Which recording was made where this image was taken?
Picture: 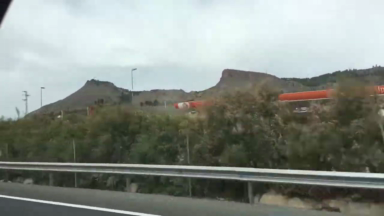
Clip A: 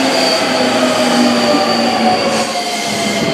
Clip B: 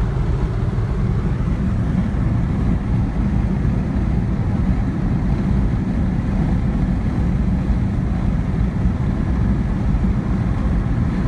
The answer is B